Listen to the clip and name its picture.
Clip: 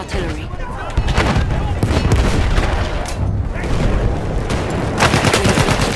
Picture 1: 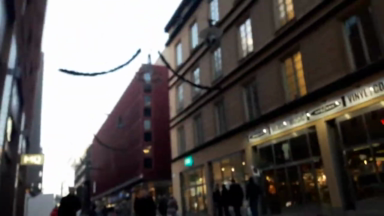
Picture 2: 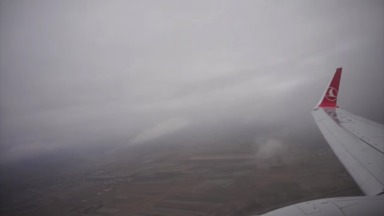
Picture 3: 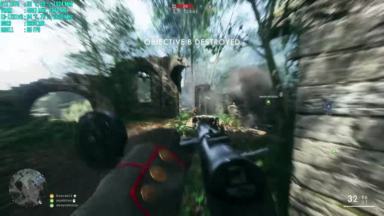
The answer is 3